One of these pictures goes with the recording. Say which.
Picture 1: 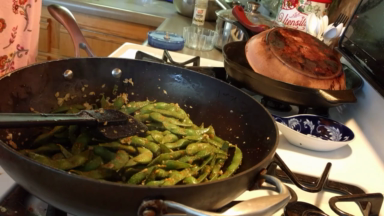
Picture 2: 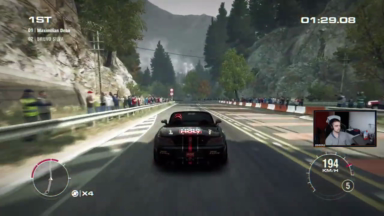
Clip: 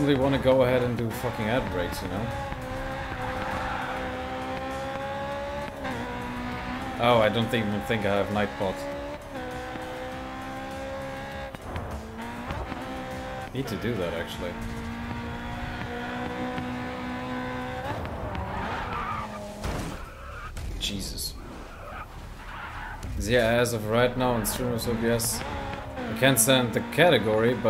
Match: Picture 2